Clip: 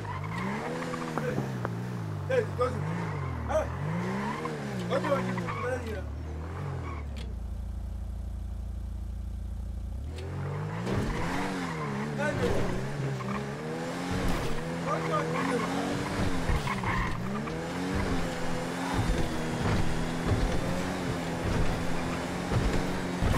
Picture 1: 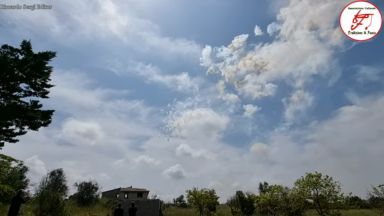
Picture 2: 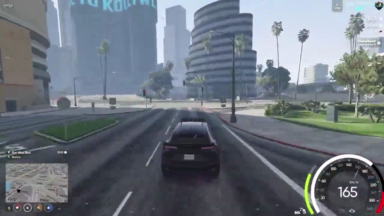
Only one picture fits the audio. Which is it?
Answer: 2